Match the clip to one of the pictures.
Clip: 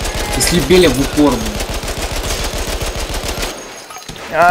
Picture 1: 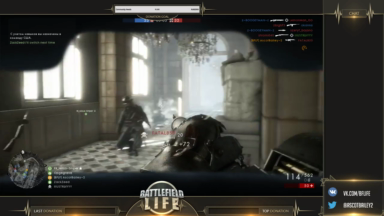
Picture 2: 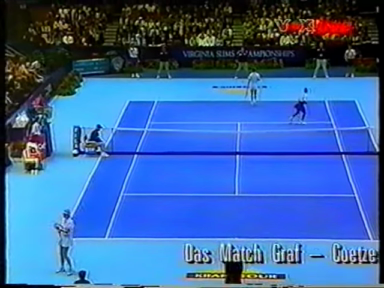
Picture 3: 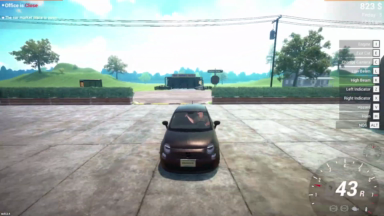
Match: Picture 1